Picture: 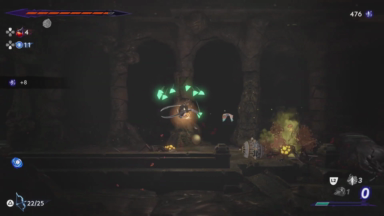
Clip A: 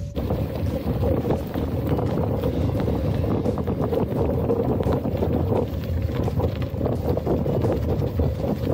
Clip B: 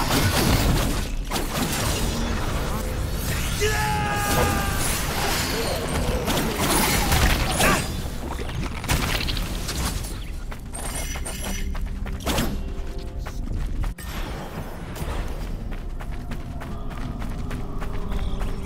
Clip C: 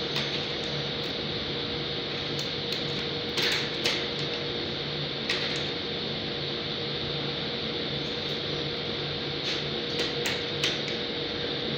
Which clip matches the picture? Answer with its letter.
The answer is B